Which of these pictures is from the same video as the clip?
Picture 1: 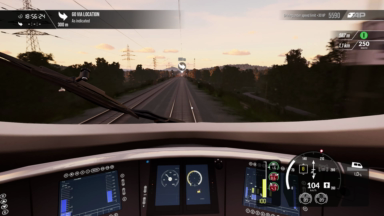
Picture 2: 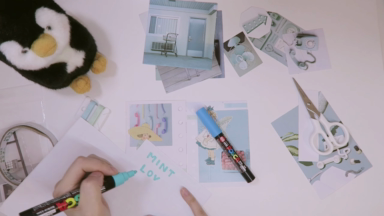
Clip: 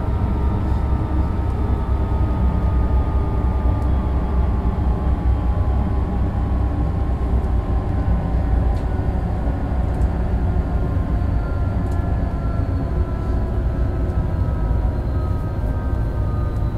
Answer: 1